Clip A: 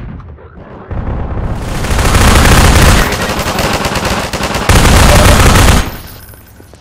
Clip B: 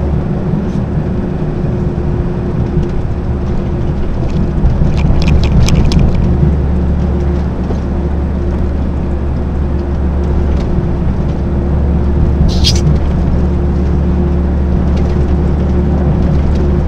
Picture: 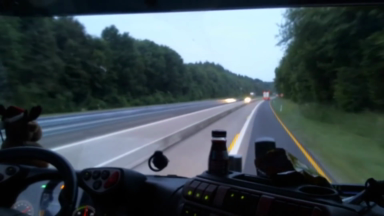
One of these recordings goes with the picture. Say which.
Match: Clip B